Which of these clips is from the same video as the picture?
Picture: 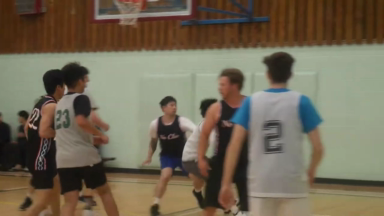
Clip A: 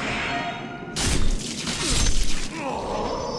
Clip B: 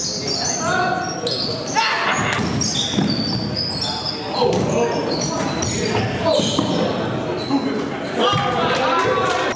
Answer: B